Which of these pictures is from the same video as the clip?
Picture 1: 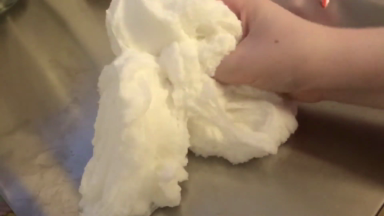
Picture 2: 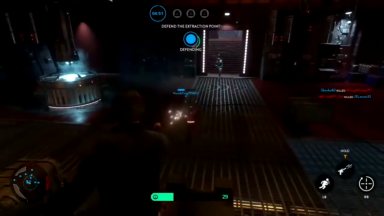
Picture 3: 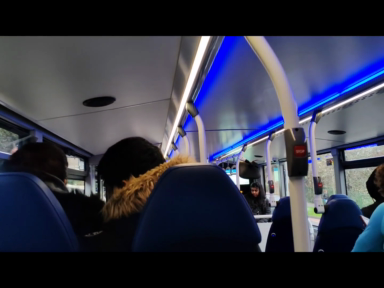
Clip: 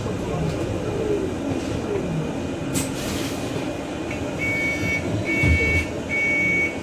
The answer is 3